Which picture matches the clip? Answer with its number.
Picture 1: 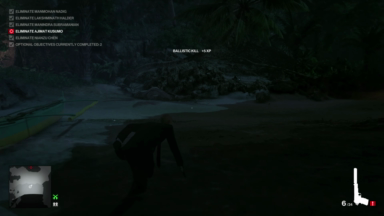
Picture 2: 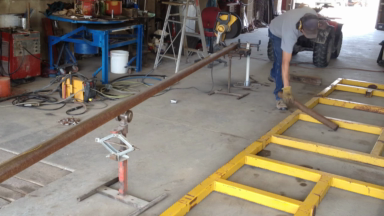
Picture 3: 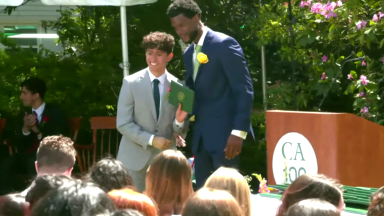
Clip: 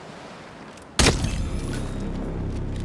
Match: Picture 1